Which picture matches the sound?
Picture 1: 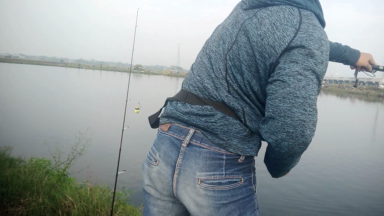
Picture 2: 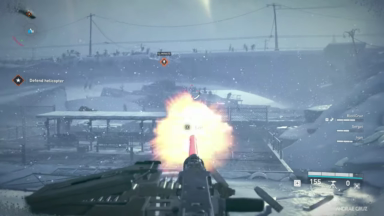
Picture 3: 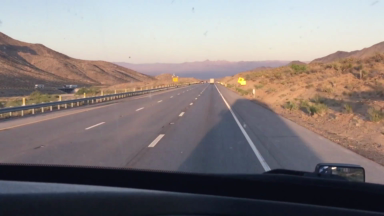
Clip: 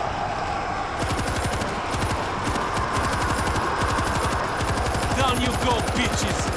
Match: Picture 2